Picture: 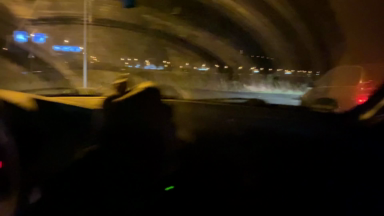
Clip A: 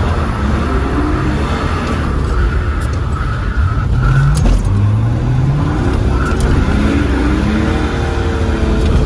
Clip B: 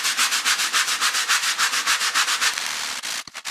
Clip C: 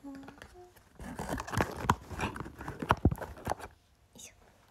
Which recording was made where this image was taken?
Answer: A